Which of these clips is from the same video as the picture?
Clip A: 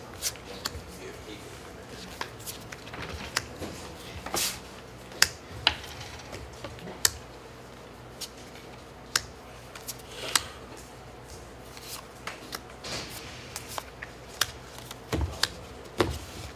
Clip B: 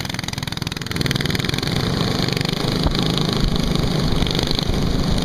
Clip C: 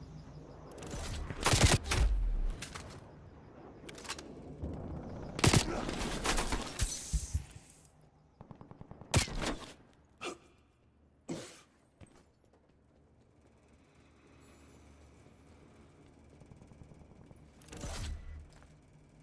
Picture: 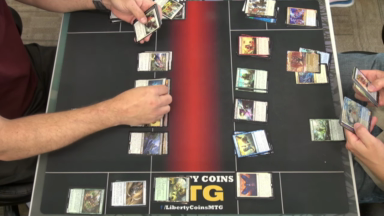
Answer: A